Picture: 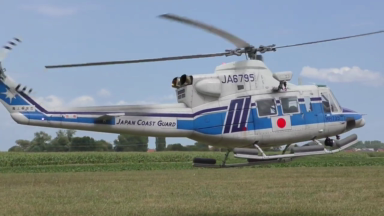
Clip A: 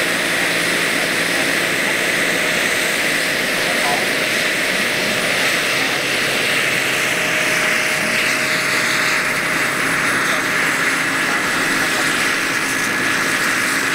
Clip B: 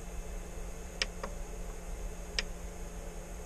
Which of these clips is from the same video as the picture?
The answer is A